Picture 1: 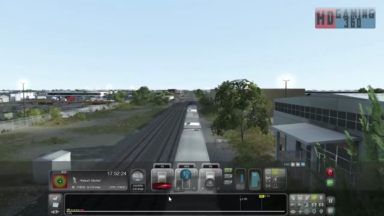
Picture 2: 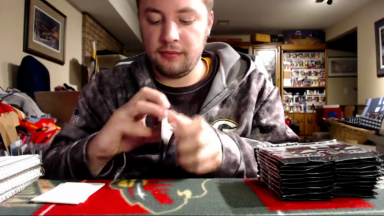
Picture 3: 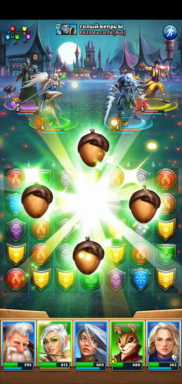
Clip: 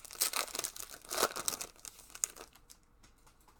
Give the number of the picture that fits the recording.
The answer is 2